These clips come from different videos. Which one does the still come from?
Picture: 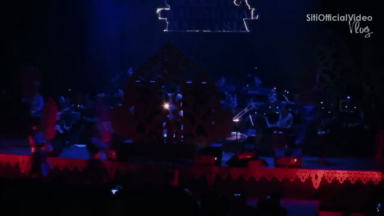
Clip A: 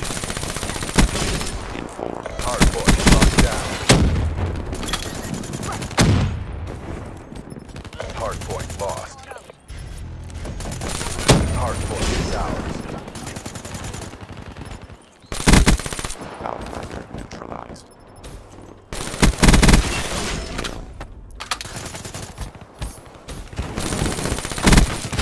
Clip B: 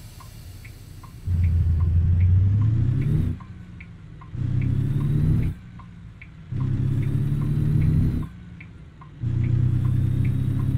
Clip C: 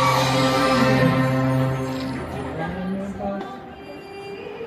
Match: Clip C